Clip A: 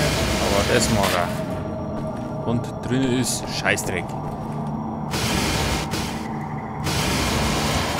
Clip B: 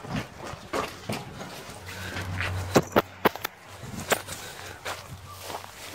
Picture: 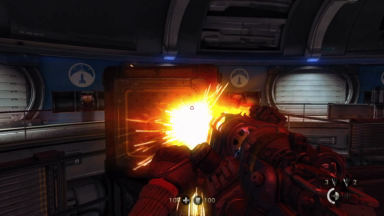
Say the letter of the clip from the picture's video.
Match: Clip A